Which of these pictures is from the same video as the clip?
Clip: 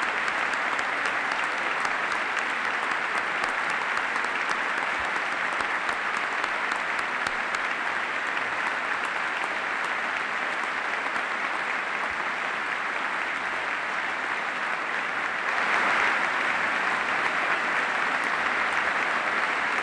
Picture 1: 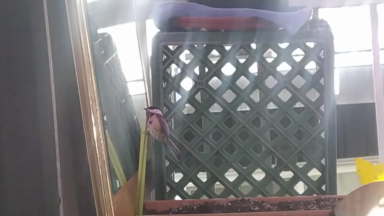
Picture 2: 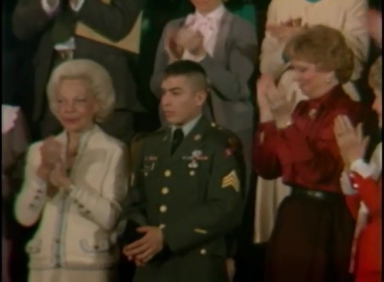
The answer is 2